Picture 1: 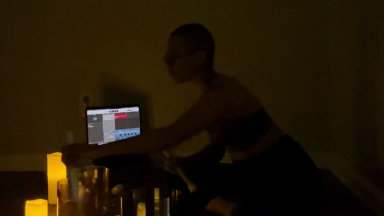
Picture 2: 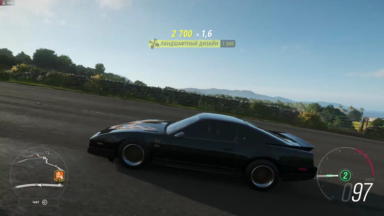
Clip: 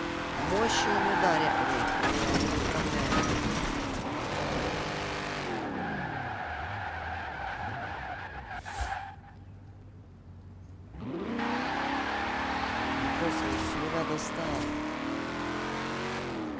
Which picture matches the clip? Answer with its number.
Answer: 2